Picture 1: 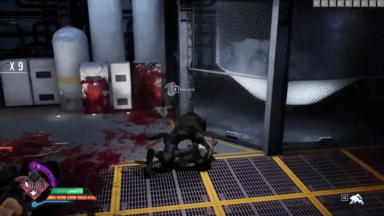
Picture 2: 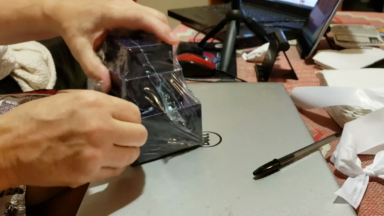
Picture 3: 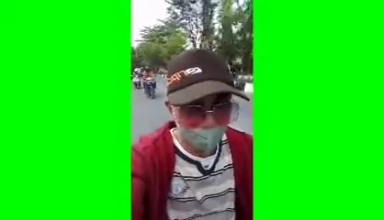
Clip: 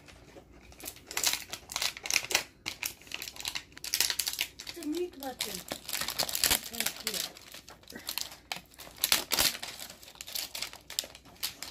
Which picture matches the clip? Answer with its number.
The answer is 2